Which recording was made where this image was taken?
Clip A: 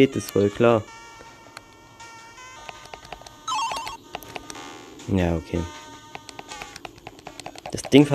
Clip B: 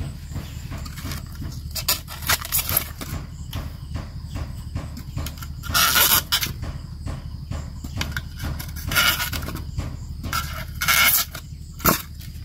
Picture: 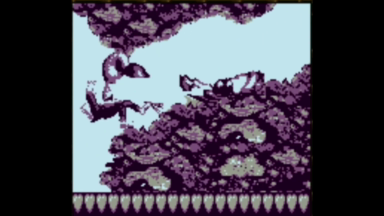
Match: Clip A